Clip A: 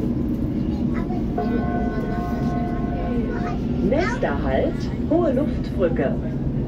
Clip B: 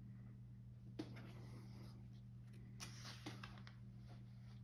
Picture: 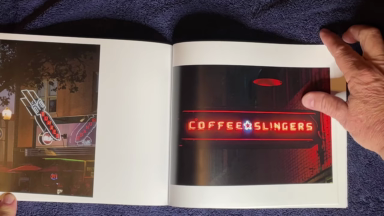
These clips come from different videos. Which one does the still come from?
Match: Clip B